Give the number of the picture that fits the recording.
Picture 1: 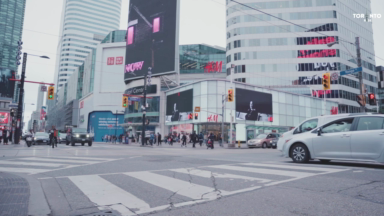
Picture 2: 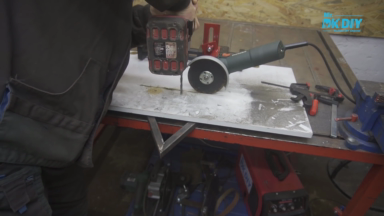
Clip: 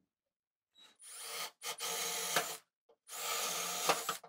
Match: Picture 2